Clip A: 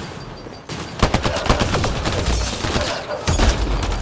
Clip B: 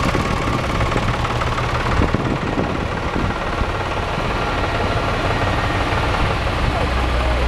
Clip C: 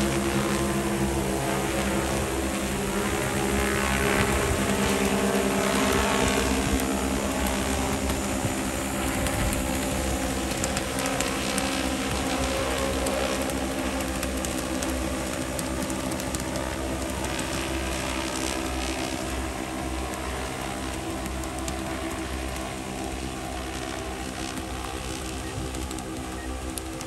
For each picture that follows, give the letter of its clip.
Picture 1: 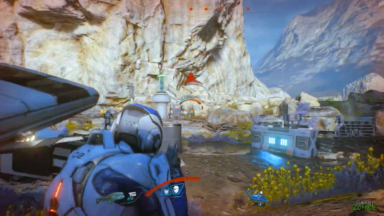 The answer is A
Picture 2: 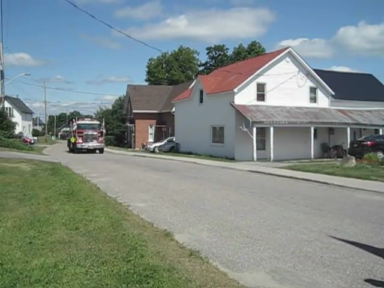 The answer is B